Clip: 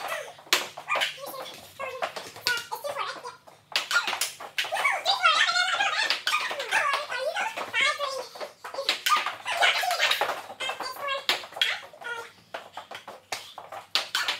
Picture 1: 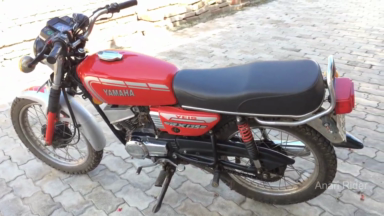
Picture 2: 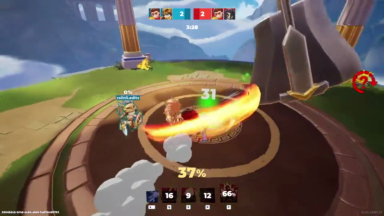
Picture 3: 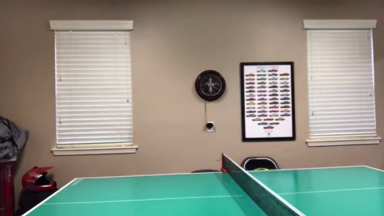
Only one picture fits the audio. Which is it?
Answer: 3